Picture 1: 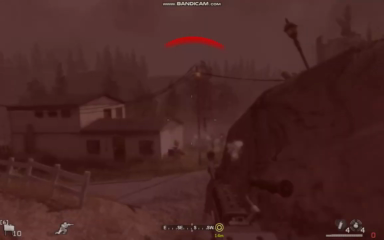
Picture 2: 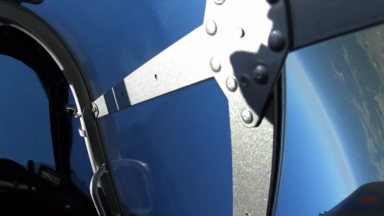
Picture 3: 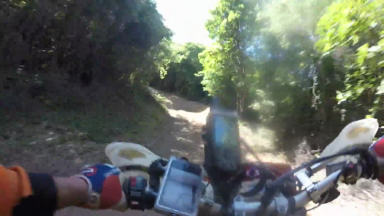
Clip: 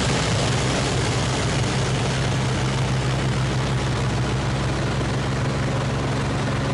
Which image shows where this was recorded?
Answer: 2